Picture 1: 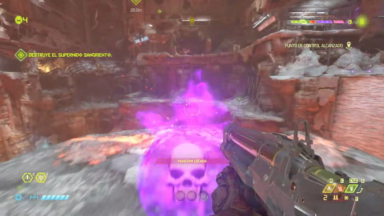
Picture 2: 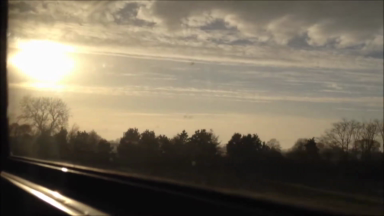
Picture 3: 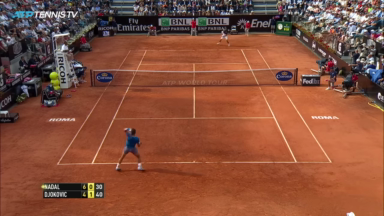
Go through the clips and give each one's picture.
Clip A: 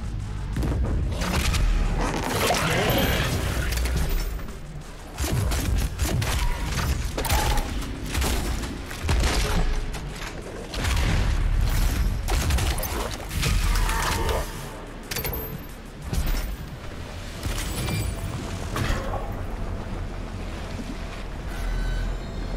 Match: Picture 1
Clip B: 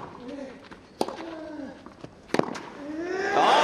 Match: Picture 3